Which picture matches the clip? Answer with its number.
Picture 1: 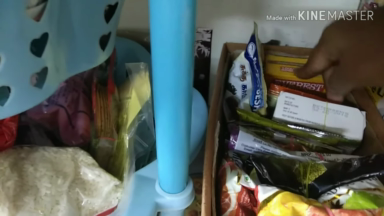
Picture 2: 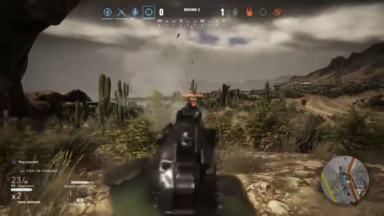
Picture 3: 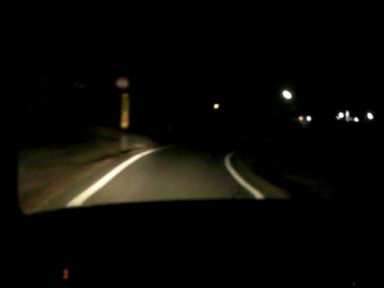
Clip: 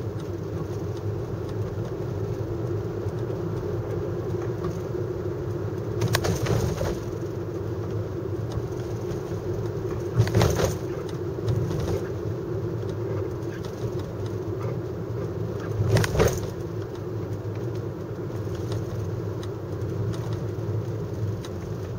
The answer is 3